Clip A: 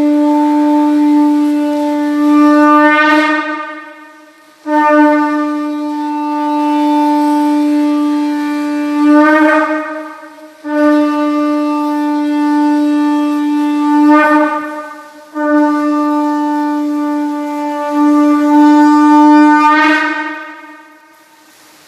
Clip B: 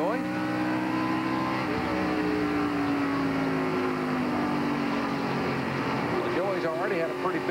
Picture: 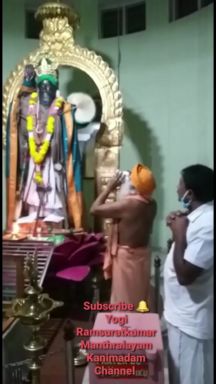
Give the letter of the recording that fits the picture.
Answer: A